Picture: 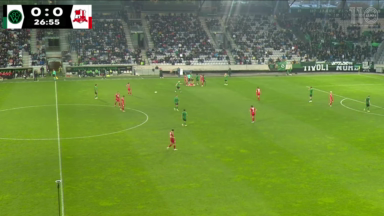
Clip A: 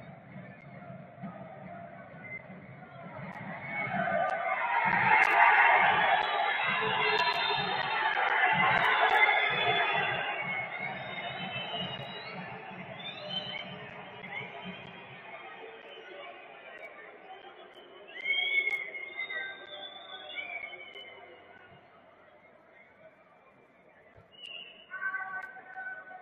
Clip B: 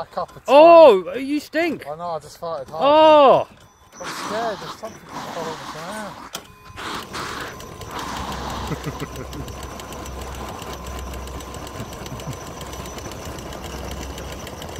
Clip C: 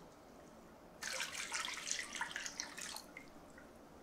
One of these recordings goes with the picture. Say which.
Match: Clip A